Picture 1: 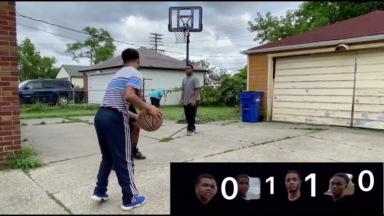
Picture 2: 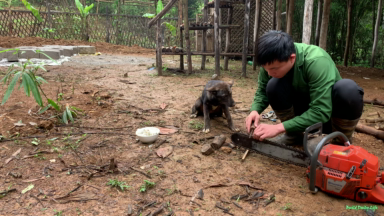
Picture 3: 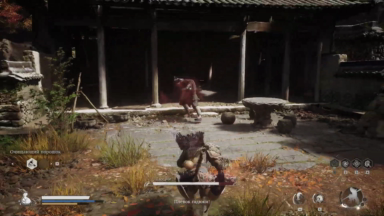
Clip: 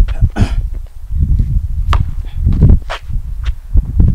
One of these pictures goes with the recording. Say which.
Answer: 1